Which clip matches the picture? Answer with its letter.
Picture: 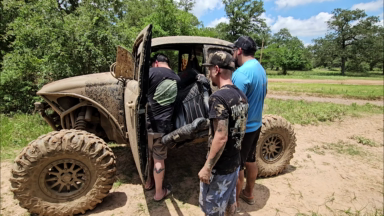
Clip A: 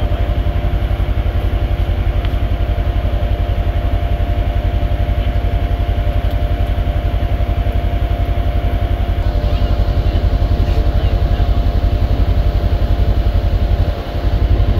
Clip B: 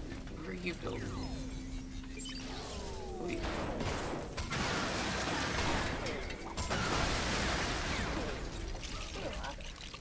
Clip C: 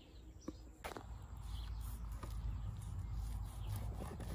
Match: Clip A